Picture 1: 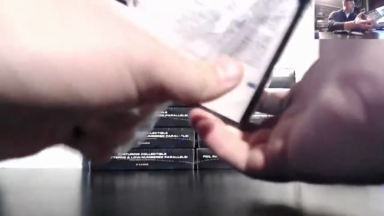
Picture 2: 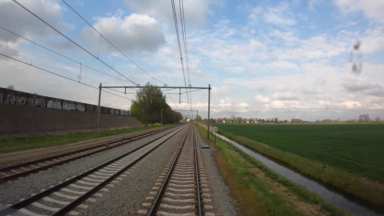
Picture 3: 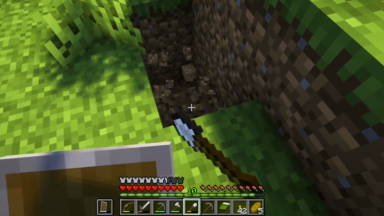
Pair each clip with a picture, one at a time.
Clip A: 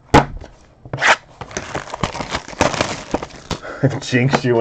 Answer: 1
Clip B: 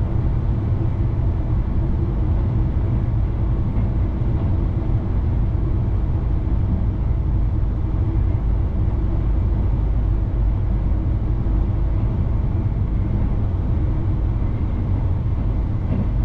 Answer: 2